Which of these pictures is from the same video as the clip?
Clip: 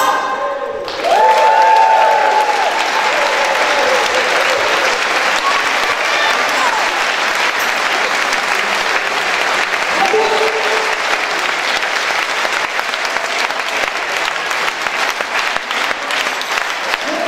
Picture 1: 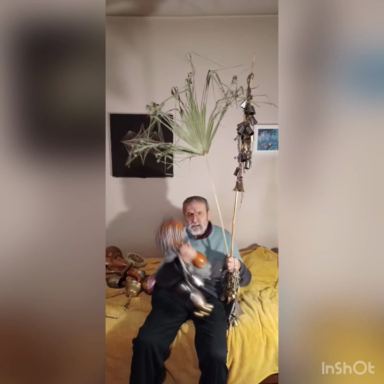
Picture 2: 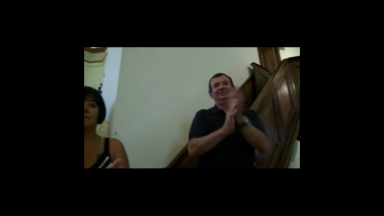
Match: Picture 2